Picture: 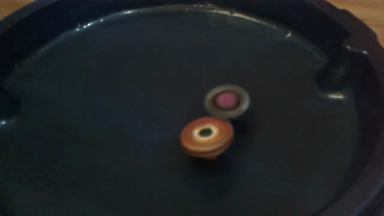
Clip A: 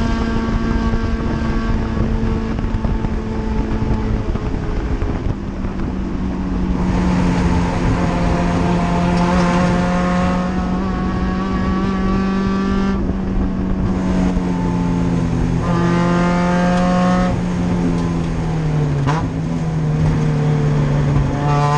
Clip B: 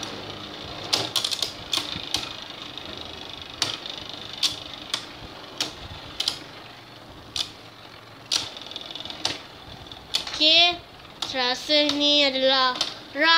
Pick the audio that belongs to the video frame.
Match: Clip B